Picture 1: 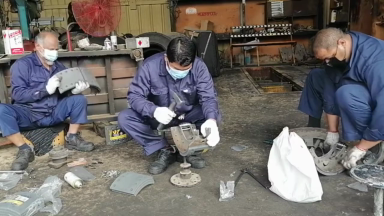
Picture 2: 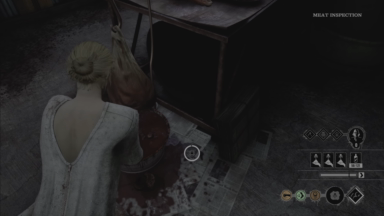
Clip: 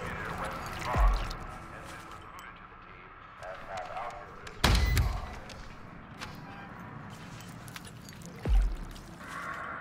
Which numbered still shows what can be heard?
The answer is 2